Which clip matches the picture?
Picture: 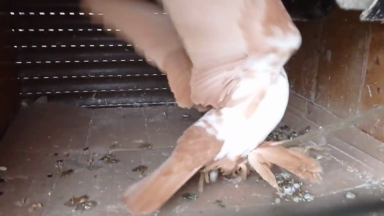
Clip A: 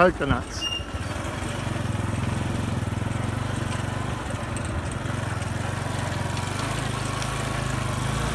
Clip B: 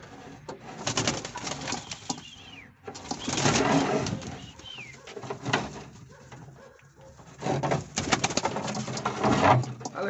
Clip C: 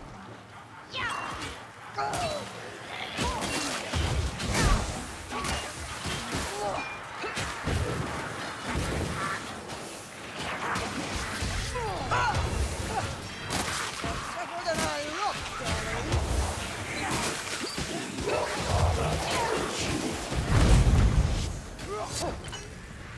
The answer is B